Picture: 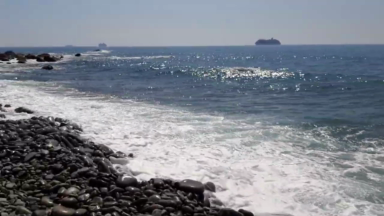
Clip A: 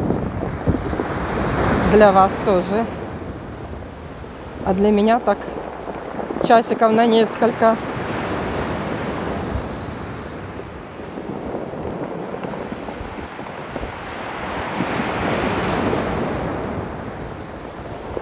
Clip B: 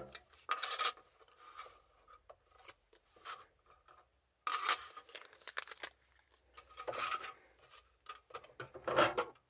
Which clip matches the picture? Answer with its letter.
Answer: A